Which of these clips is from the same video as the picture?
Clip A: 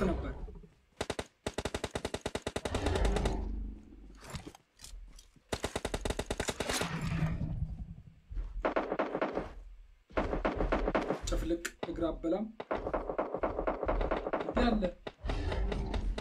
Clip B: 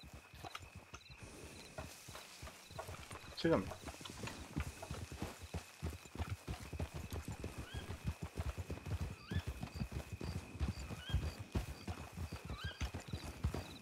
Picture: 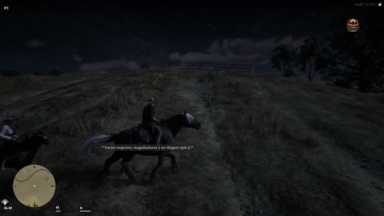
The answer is B